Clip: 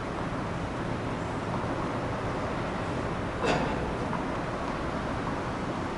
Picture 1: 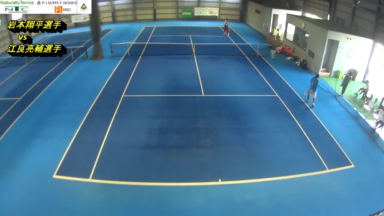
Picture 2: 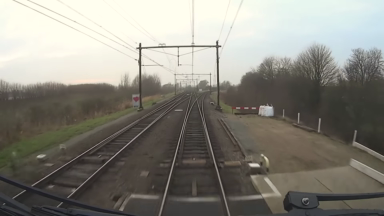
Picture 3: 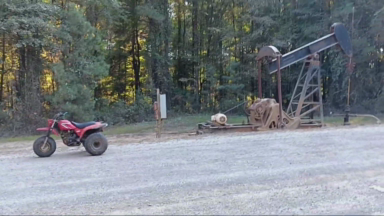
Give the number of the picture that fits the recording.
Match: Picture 1